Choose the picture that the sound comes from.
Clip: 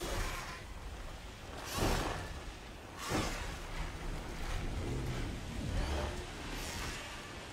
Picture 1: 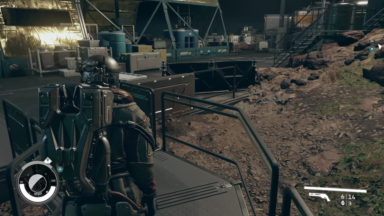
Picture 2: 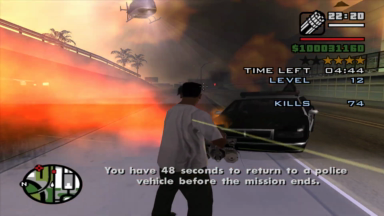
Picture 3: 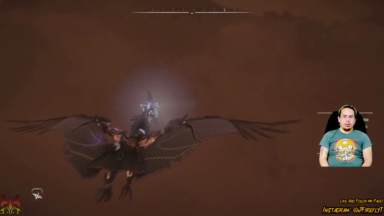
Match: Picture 3